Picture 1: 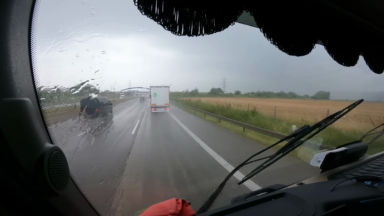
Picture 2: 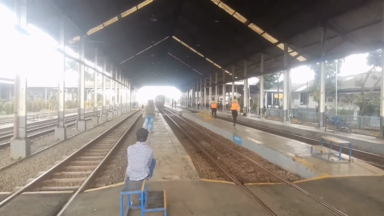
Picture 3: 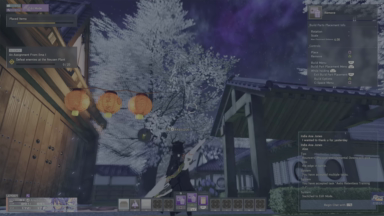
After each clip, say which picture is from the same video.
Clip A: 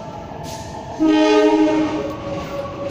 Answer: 2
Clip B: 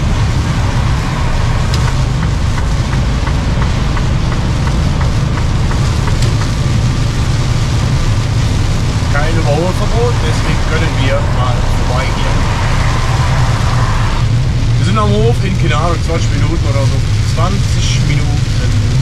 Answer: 1